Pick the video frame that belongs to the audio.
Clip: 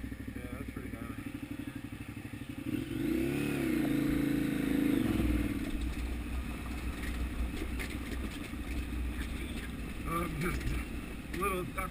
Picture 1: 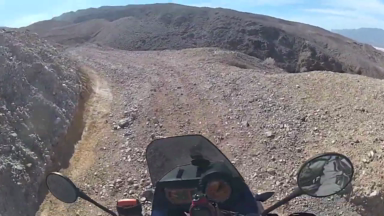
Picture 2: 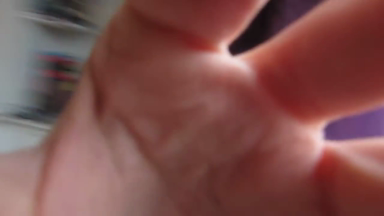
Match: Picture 1